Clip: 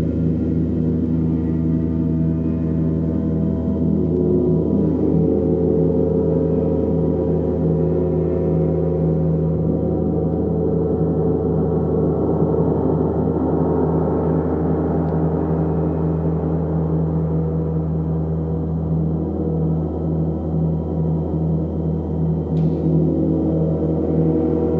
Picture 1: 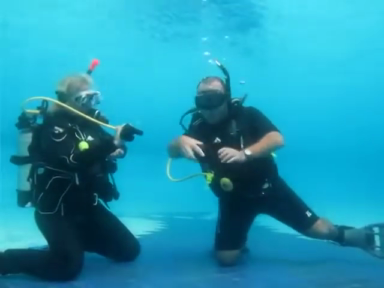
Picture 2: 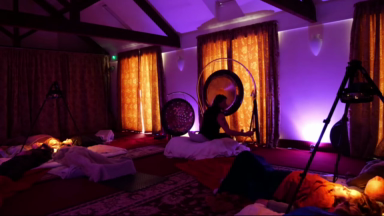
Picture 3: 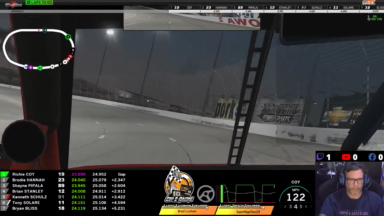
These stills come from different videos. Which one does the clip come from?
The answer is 2